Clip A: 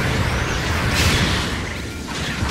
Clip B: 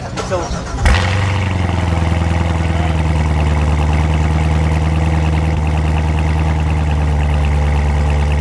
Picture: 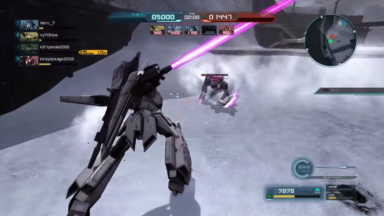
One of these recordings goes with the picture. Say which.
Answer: A